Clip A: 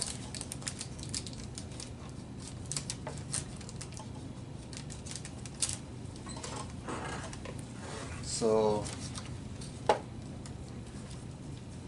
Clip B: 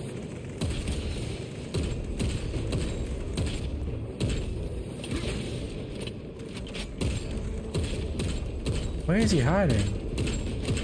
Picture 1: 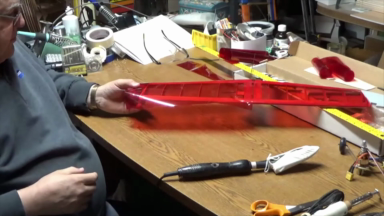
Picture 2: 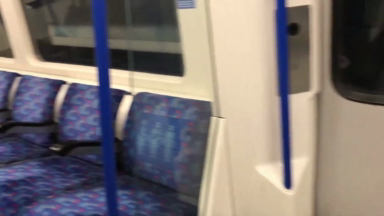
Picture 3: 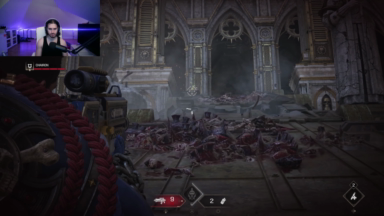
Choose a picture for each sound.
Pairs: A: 1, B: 3